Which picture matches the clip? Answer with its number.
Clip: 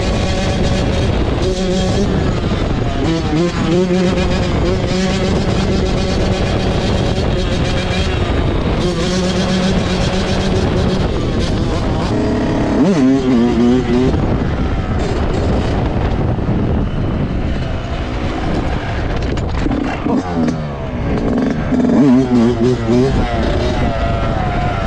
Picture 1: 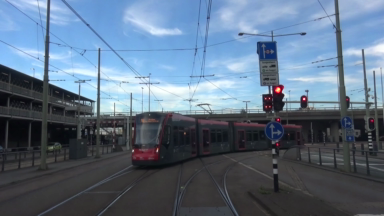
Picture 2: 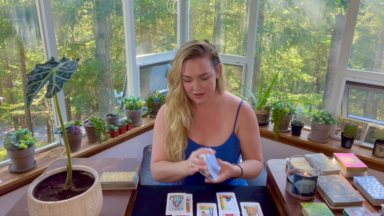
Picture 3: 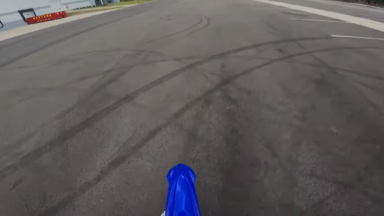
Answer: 3